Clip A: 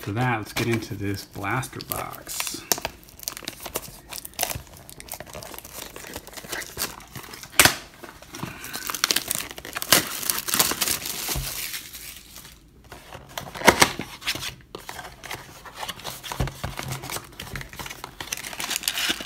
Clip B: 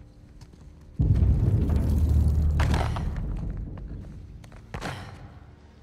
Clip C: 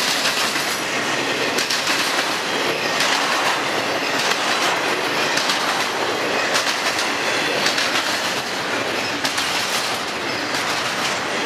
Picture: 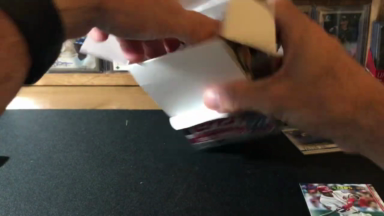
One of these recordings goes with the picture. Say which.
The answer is A